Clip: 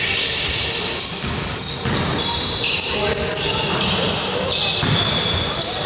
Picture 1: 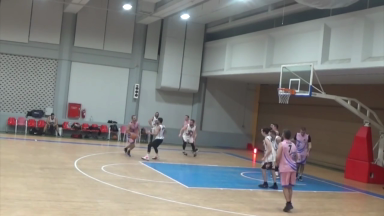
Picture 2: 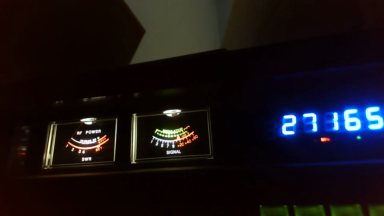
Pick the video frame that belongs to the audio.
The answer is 1